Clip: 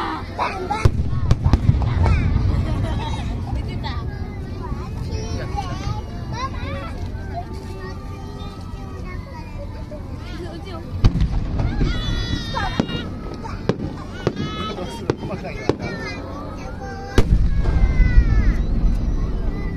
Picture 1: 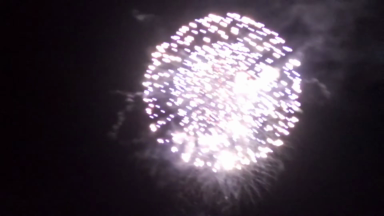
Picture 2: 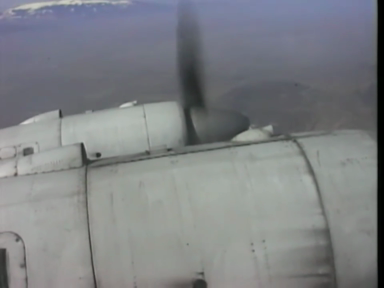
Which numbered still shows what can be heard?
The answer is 1